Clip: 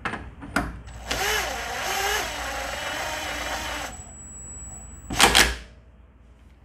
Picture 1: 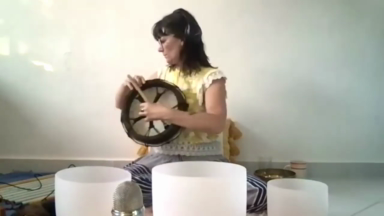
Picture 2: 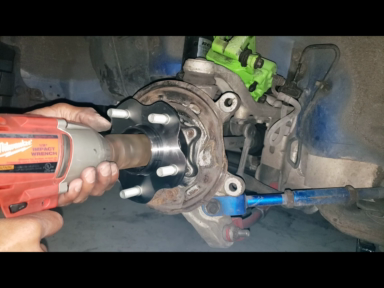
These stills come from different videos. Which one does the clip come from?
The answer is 2